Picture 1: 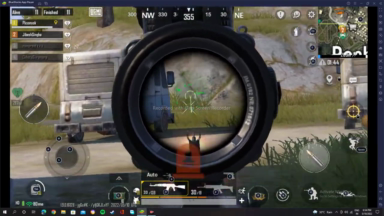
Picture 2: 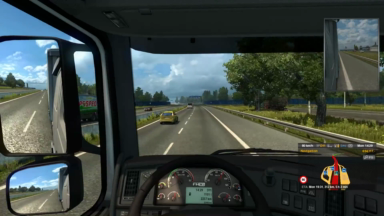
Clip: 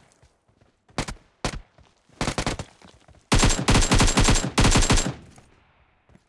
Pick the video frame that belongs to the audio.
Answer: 1